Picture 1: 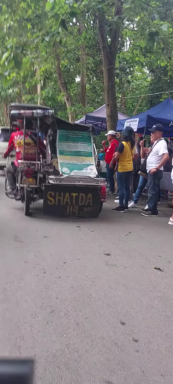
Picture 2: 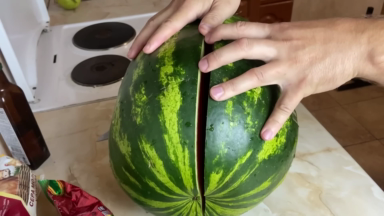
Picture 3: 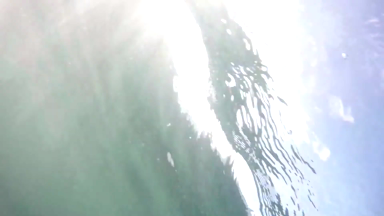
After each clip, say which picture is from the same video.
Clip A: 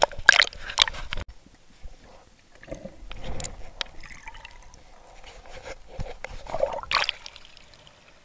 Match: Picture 3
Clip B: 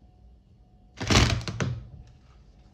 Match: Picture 2